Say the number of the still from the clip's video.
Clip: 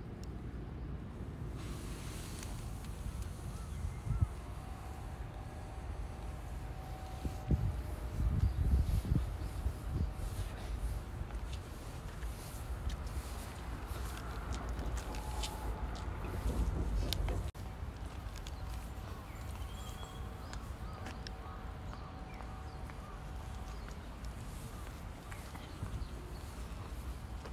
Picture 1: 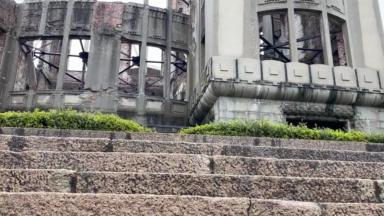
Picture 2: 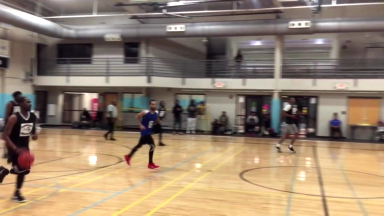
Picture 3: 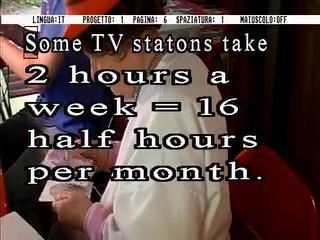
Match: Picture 1